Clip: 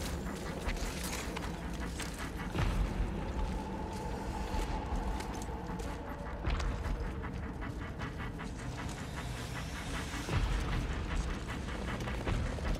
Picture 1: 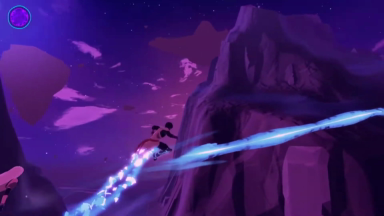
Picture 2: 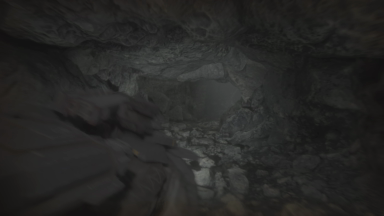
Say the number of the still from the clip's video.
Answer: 2